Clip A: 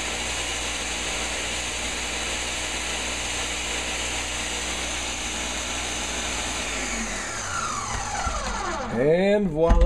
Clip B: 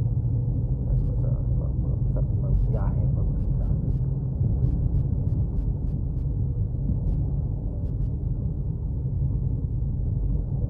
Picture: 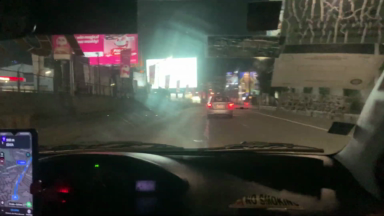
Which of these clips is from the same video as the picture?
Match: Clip B